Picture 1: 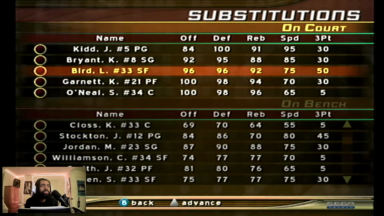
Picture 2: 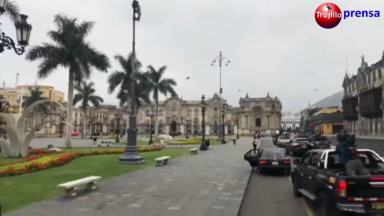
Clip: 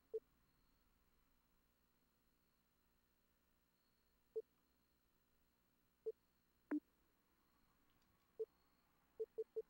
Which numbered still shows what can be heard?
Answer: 1